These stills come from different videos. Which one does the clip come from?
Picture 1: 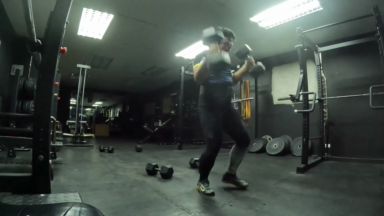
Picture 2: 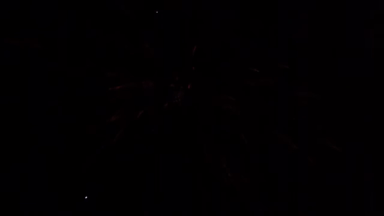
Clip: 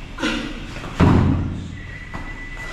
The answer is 1